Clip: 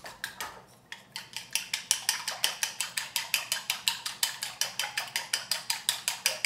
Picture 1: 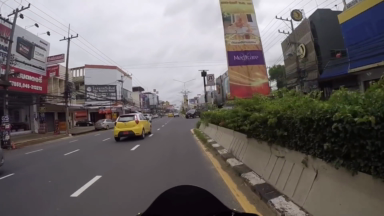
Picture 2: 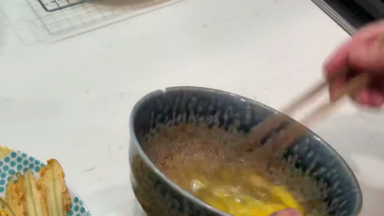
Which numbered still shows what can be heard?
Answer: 2